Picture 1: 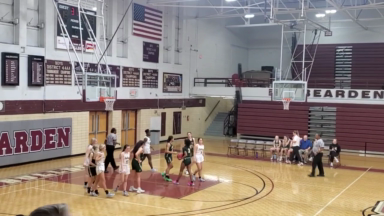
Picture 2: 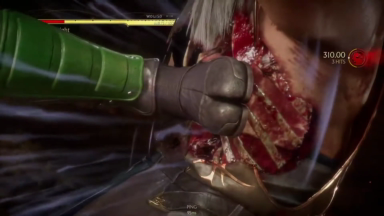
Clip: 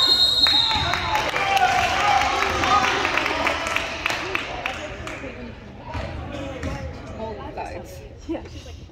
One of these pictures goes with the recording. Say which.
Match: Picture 1